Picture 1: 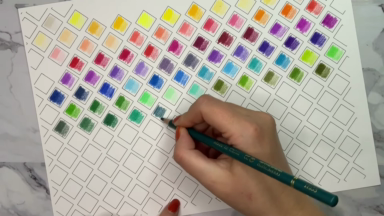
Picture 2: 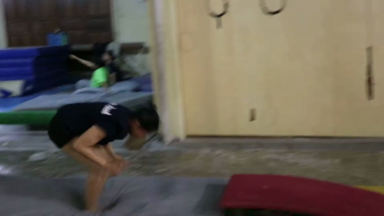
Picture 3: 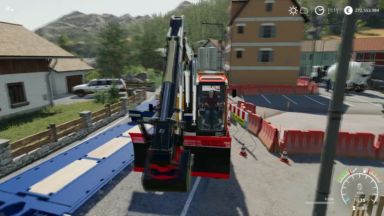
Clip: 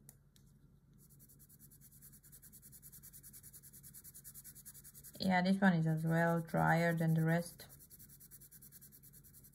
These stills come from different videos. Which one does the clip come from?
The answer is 1